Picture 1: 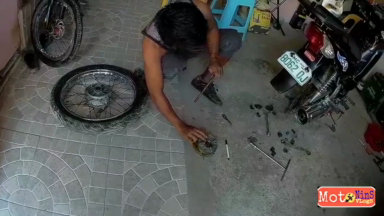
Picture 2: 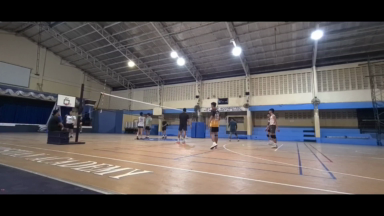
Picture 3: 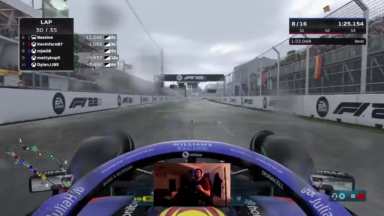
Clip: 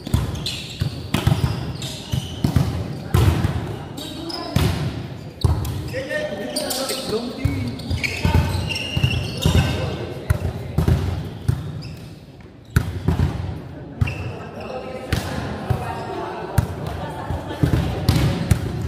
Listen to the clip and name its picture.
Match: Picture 2